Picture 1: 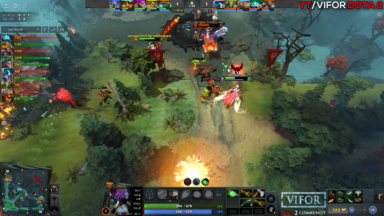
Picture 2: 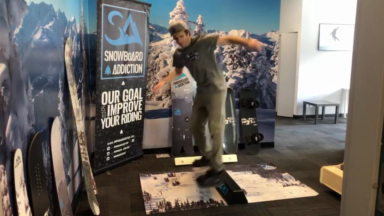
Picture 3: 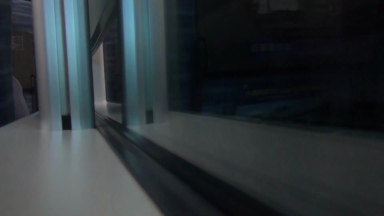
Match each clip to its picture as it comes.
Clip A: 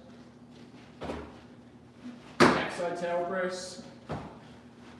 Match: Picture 2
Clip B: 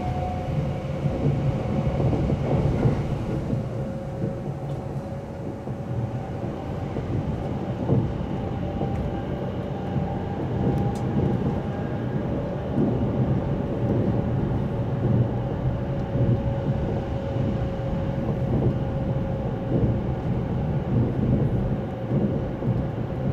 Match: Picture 3